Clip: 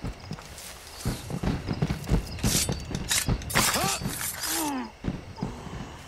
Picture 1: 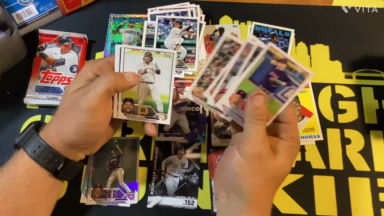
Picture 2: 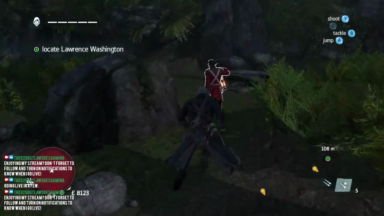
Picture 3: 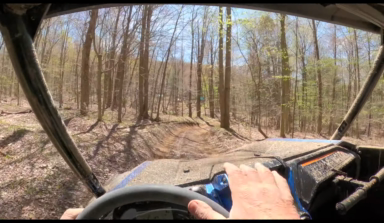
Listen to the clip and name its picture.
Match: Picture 2